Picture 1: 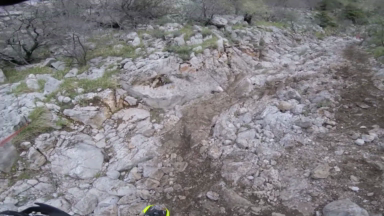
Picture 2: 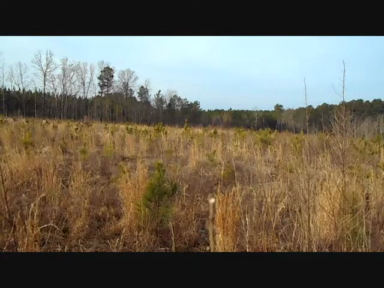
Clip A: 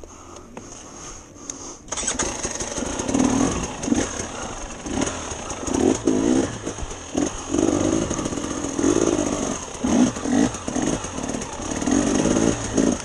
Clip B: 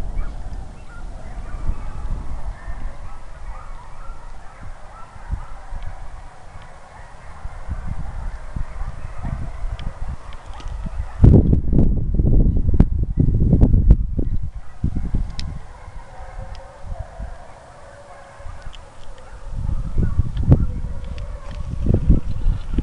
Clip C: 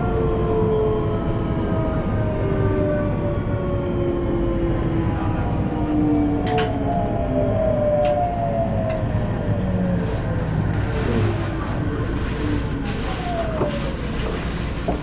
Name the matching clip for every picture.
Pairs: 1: A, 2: B